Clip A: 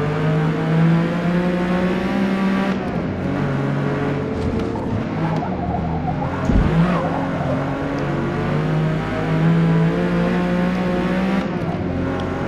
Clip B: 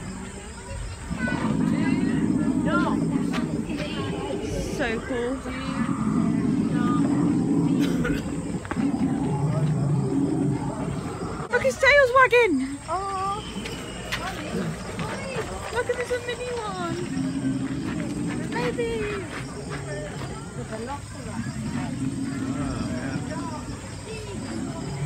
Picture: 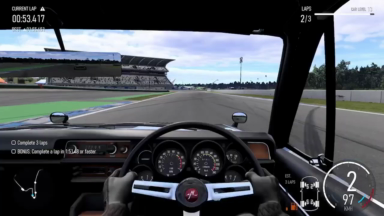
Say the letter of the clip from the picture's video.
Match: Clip A